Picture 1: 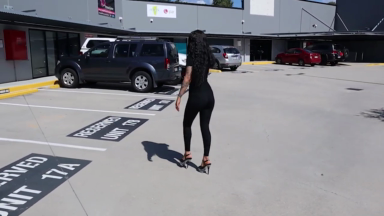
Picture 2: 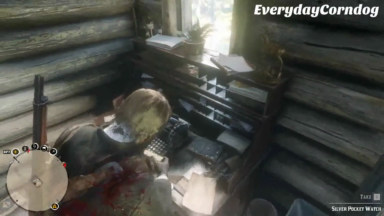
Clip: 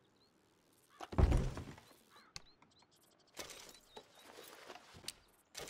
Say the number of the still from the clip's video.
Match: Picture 2